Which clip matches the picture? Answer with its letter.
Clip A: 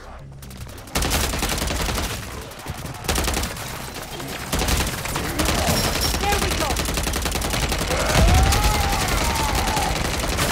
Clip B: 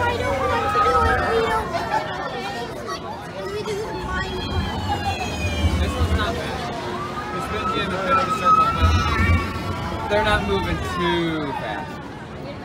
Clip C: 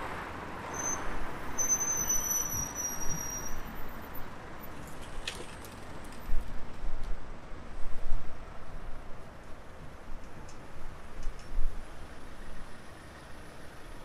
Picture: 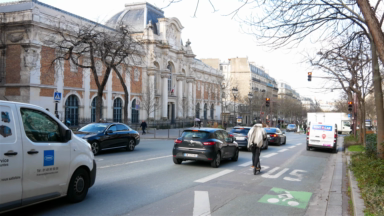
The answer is C